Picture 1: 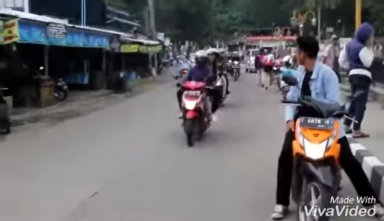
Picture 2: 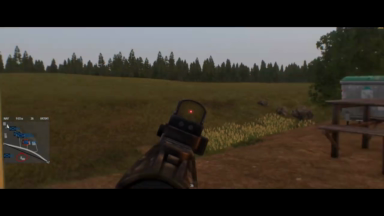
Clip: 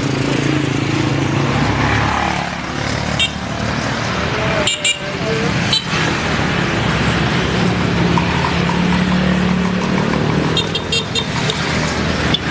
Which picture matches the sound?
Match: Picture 1